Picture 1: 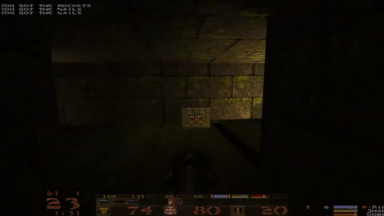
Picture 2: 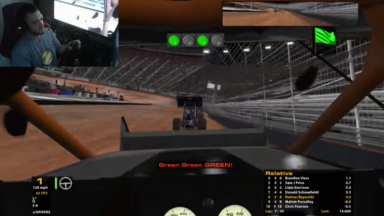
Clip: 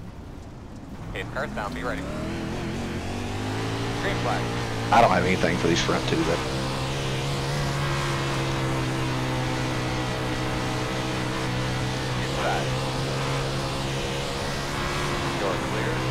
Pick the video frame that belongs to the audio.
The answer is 2